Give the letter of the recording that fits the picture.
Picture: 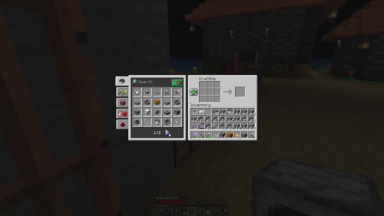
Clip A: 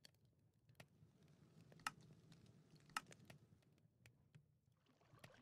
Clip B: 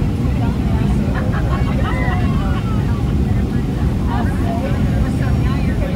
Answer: A